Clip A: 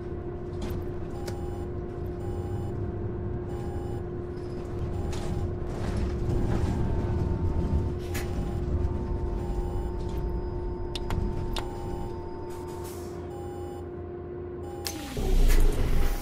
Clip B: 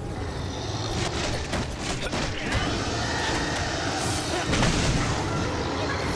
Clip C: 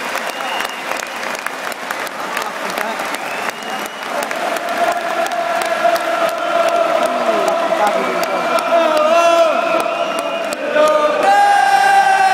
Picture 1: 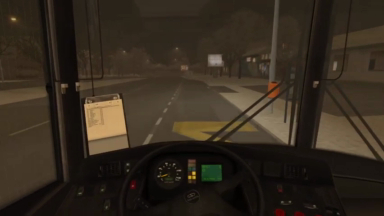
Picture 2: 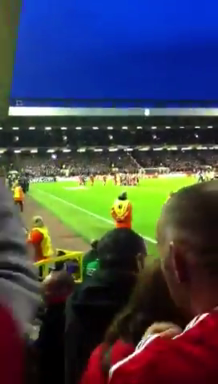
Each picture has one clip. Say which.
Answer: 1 A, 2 C